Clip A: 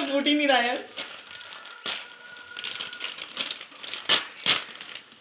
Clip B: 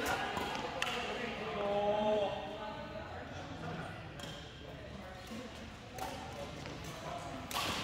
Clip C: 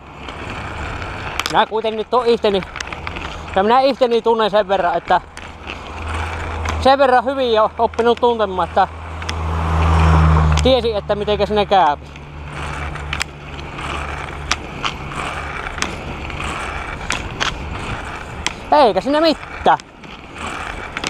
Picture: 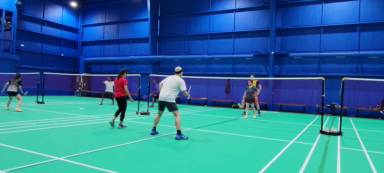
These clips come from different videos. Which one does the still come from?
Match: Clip B